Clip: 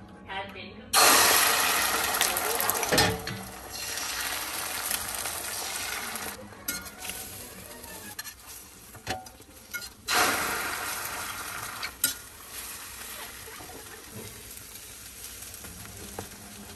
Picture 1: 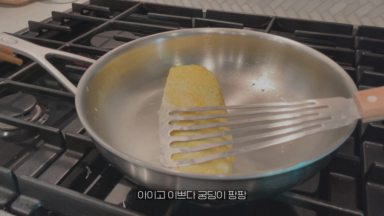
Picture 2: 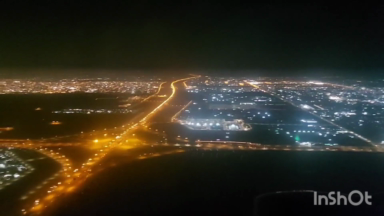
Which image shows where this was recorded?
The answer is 1